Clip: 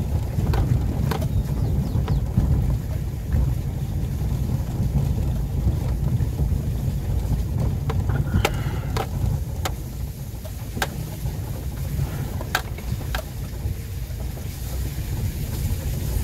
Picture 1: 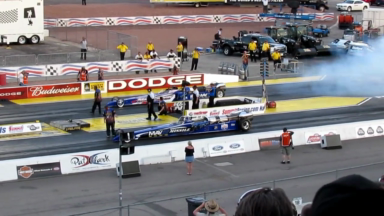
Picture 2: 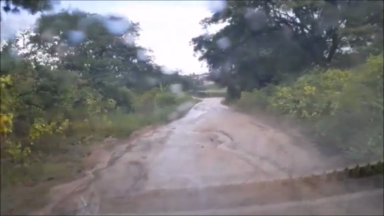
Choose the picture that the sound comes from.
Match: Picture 2